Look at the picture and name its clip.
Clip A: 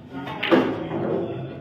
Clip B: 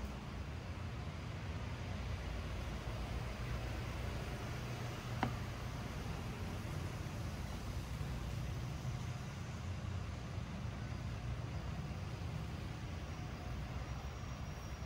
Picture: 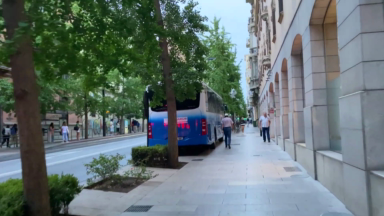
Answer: B